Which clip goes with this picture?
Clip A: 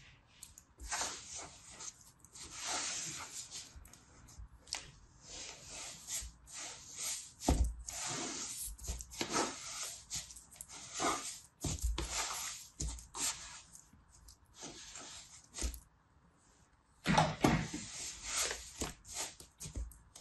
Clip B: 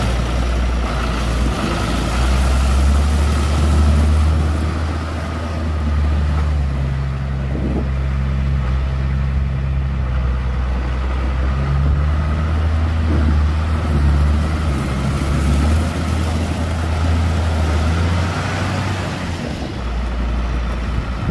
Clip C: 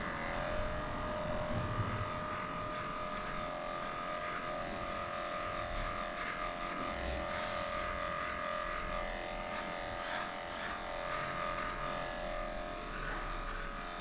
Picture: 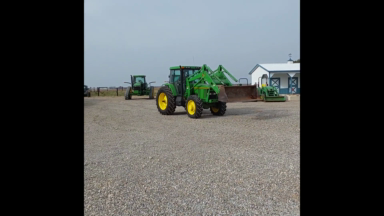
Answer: B